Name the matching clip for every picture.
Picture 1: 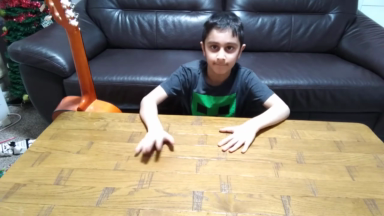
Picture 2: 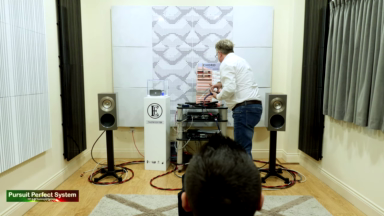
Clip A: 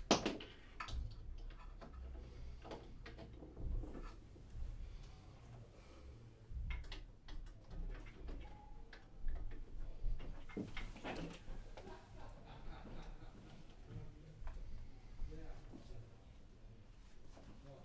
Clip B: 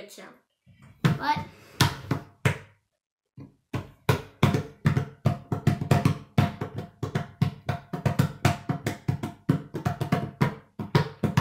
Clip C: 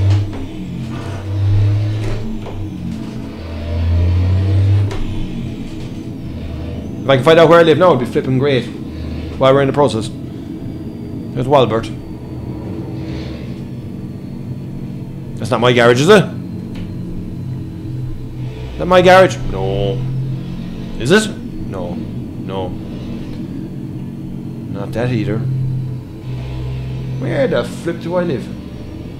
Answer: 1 B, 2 A